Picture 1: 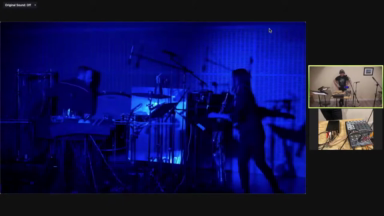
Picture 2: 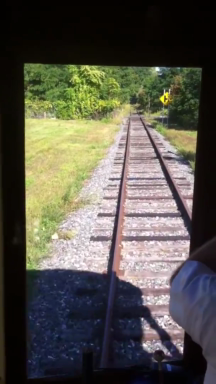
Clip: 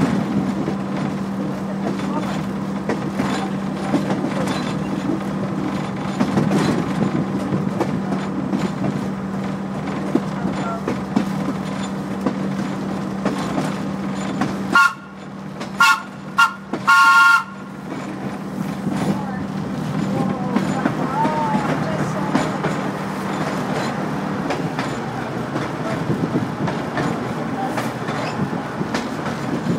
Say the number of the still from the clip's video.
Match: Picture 2